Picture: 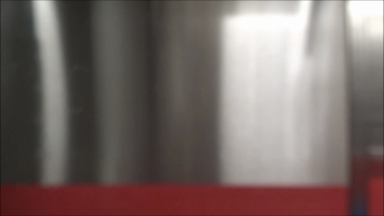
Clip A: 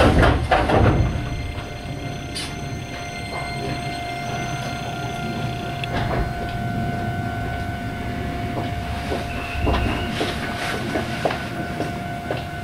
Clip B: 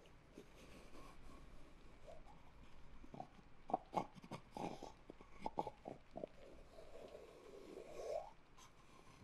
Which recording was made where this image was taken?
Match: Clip A